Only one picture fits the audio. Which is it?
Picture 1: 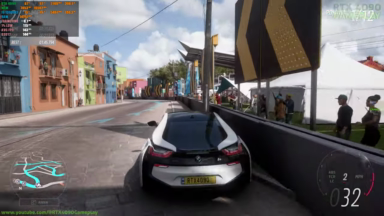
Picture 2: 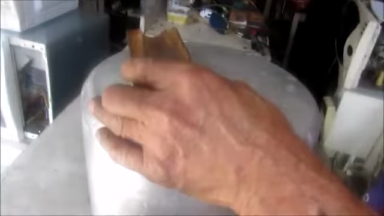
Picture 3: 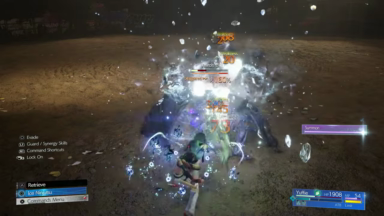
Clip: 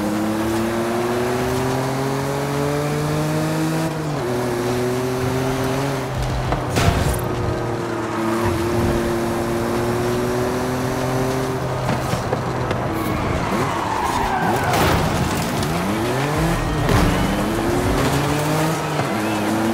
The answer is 1